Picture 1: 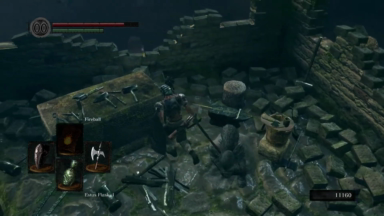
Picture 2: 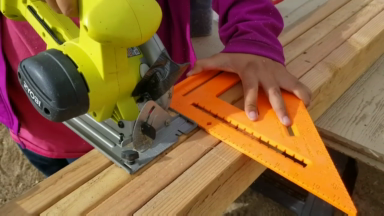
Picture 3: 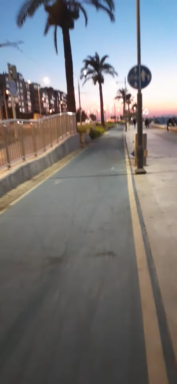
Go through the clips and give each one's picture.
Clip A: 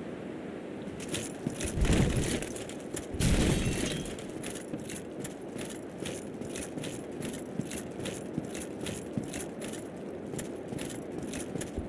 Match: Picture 1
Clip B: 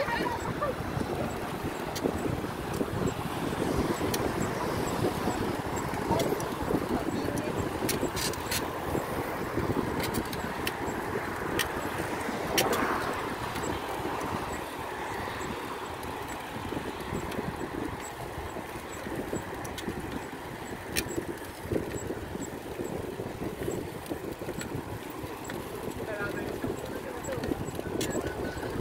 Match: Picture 3